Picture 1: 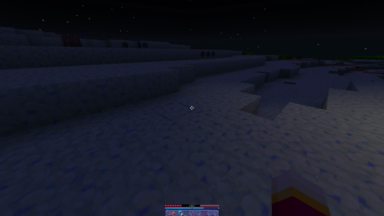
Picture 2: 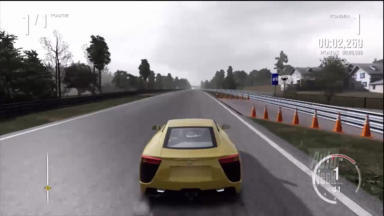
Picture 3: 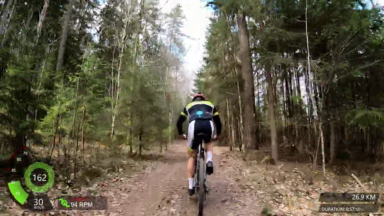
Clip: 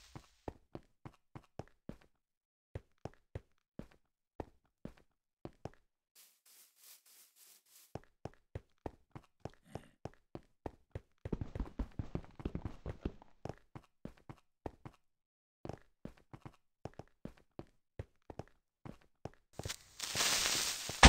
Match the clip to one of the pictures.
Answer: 1